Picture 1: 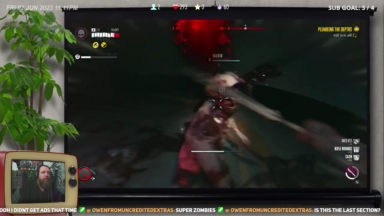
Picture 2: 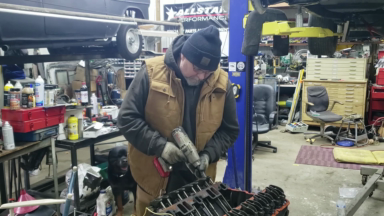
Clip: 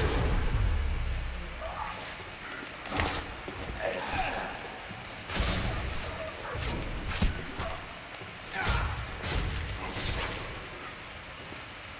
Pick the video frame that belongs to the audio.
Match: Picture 1